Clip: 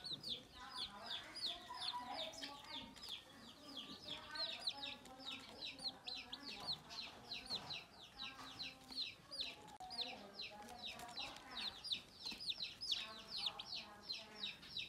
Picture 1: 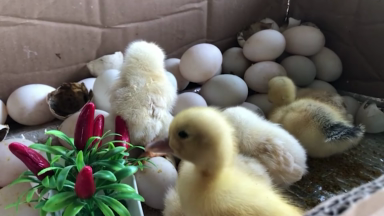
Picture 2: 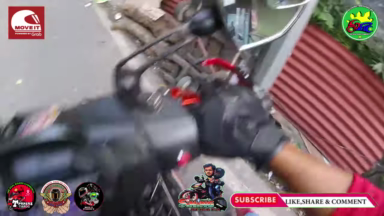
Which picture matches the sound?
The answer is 1